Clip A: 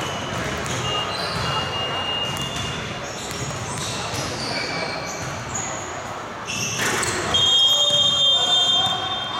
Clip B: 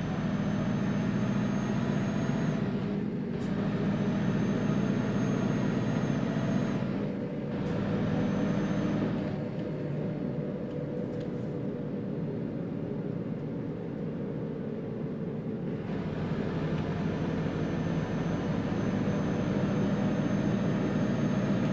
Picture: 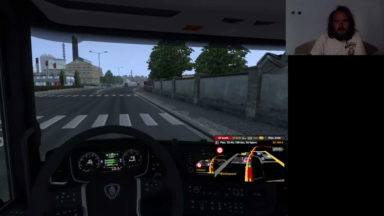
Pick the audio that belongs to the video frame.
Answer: B